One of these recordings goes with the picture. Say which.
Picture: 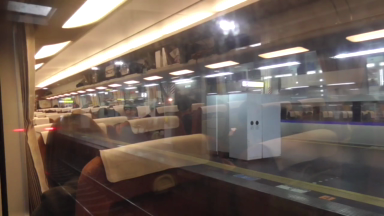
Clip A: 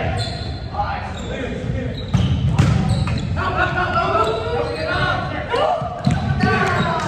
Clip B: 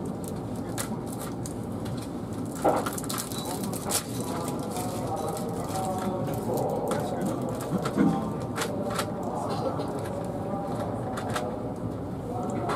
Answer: B